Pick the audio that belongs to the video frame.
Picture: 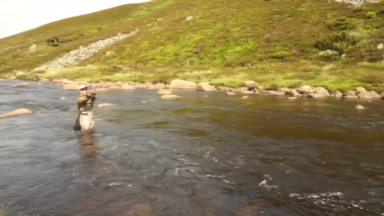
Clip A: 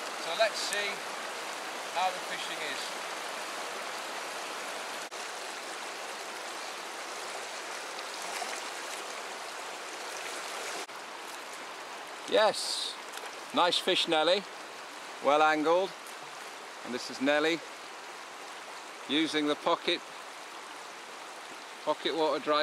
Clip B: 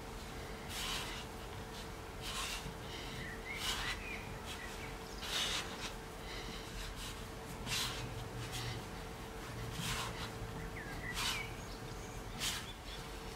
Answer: A